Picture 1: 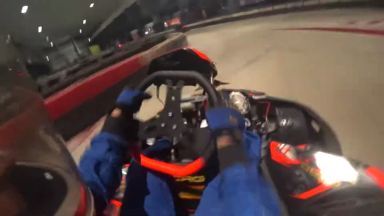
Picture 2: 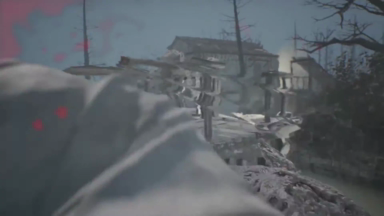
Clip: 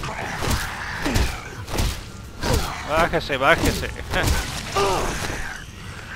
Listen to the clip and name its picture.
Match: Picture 2